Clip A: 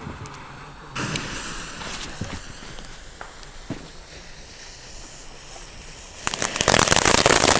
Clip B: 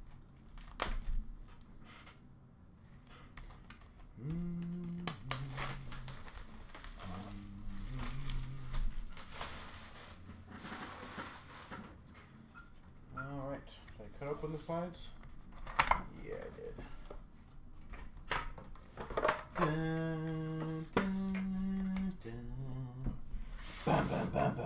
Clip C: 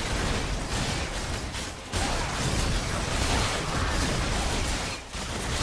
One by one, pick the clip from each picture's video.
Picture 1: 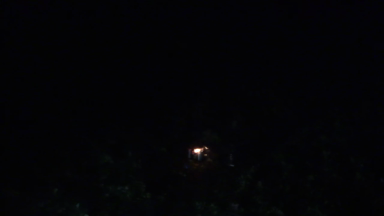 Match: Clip A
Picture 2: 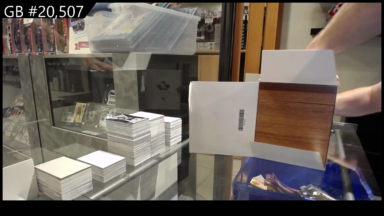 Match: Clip B